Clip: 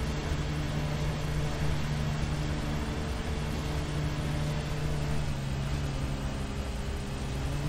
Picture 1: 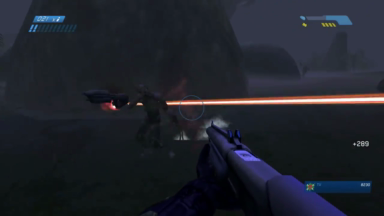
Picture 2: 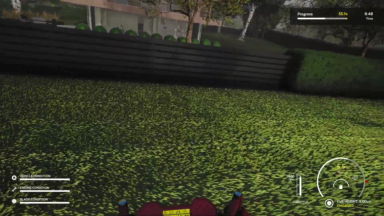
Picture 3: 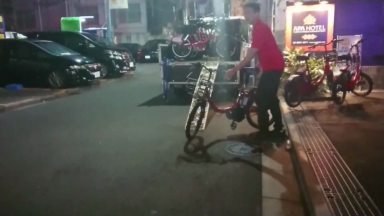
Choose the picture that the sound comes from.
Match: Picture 2